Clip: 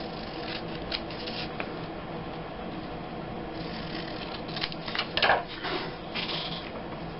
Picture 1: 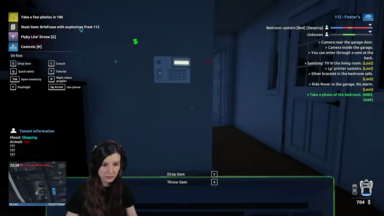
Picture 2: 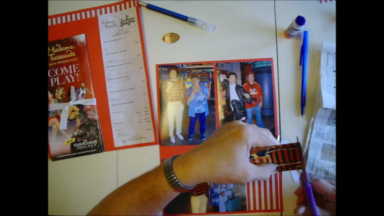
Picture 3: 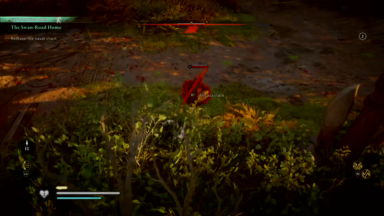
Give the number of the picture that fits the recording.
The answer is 2